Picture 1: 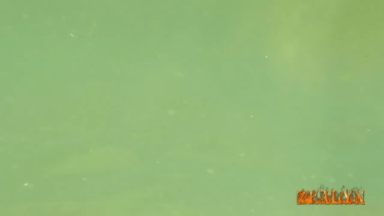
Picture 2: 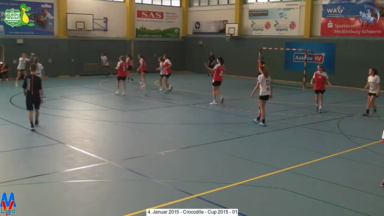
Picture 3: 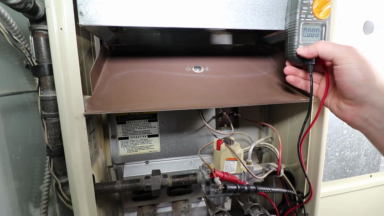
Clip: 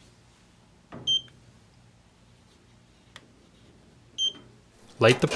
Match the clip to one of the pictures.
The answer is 3